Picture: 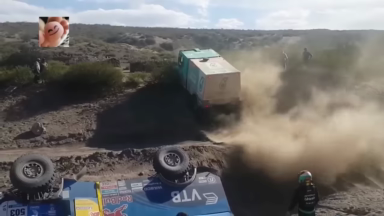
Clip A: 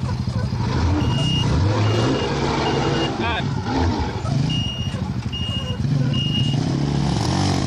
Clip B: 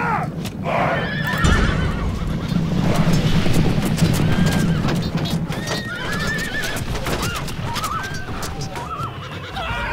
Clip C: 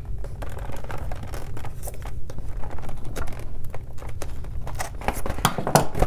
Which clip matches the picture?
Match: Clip A